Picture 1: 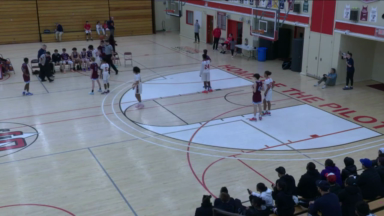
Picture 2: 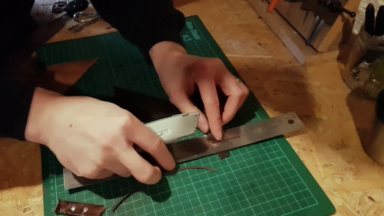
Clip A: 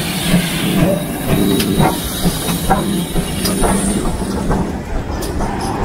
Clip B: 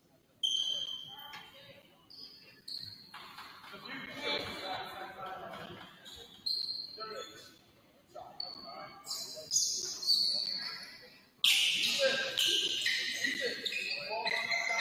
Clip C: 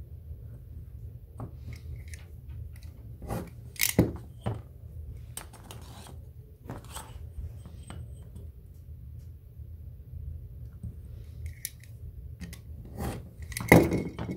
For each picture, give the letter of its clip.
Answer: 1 B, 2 C